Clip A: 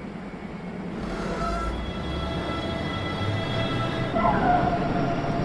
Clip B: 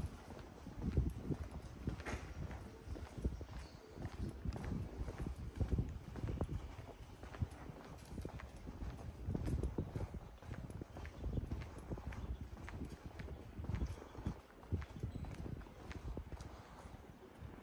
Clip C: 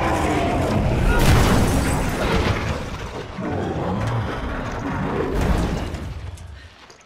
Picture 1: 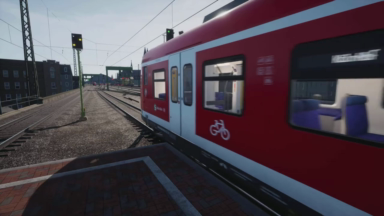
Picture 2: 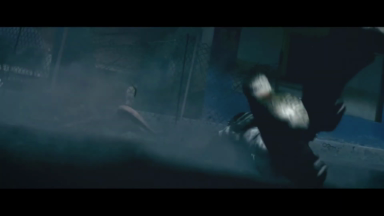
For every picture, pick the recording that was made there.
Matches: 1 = A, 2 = C